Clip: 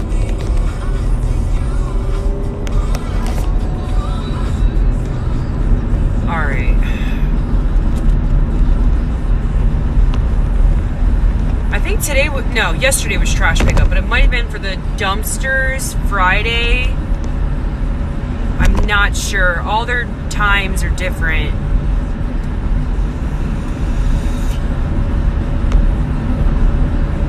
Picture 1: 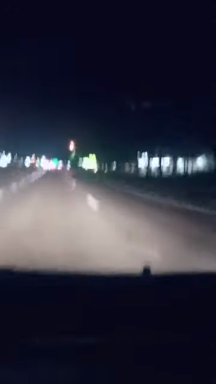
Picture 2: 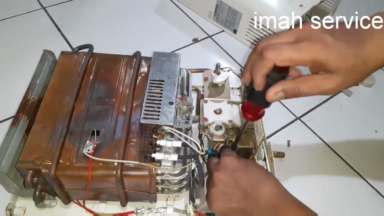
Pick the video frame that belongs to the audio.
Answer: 1